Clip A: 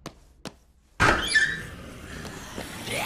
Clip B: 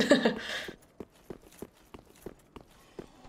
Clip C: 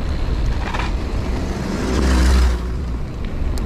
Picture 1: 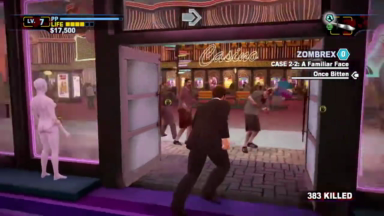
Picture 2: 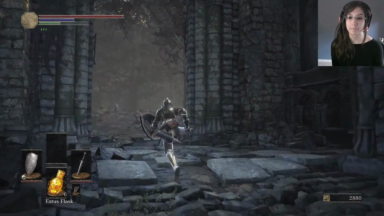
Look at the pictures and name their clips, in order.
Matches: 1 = A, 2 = B